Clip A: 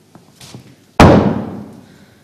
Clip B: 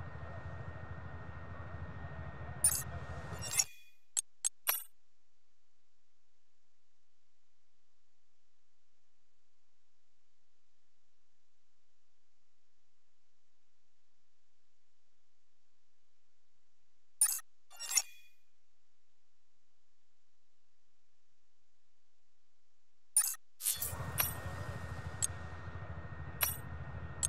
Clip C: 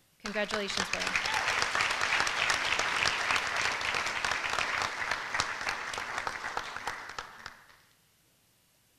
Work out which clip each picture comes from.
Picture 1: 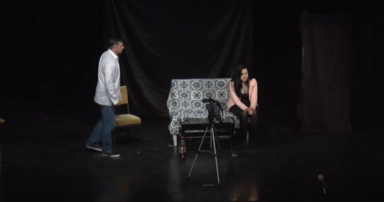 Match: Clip A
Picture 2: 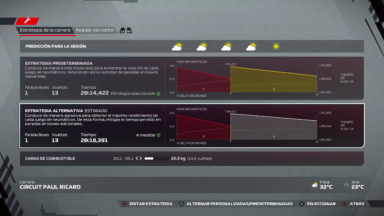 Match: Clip B